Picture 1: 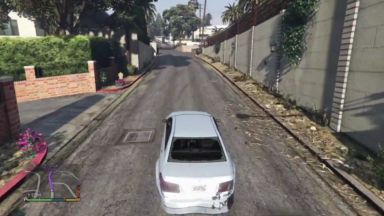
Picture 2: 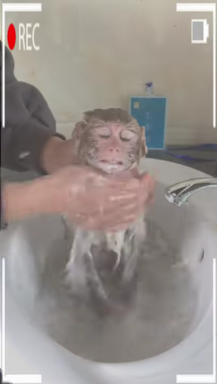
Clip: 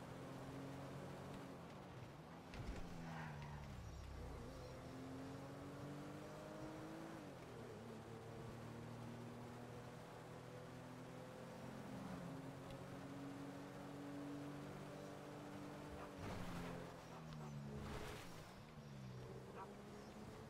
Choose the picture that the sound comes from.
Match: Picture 1